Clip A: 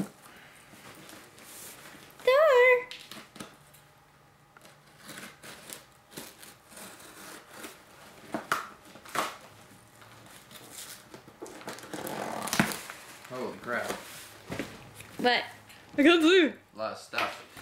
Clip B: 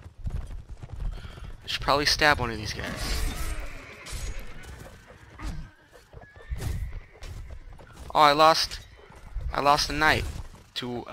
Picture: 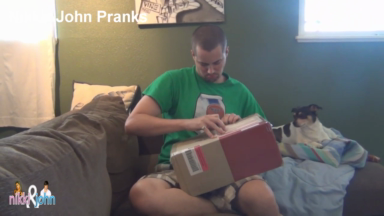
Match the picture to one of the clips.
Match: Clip A